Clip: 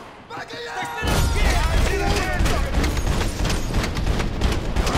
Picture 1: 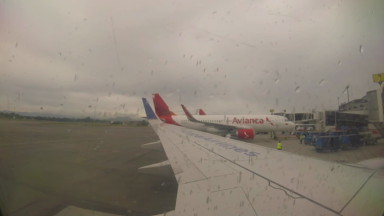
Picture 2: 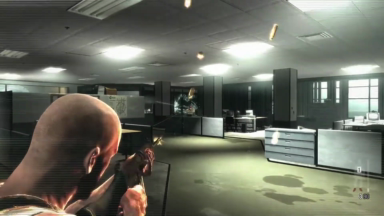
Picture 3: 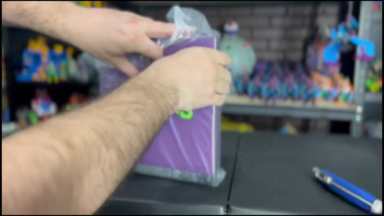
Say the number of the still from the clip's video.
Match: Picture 2